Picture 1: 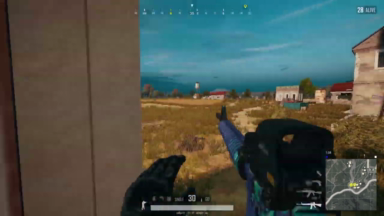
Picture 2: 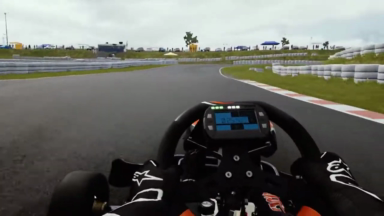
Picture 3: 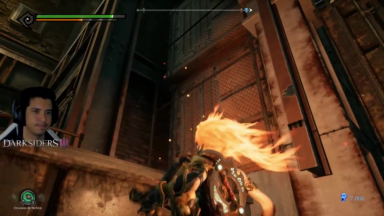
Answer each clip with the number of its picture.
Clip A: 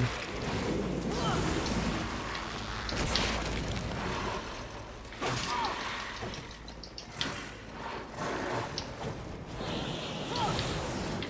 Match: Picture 3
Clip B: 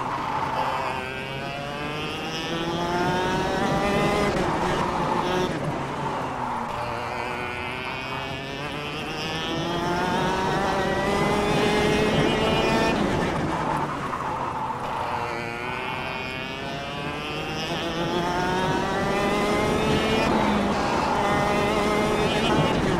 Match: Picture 2